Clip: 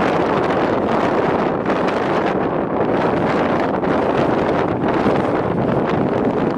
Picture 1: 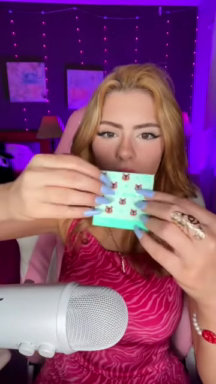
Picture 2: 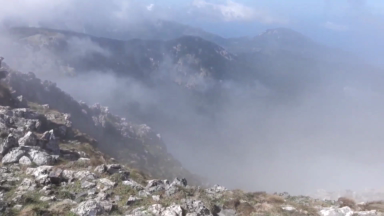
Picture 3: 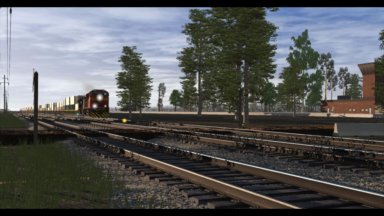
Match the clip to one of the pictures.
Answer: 2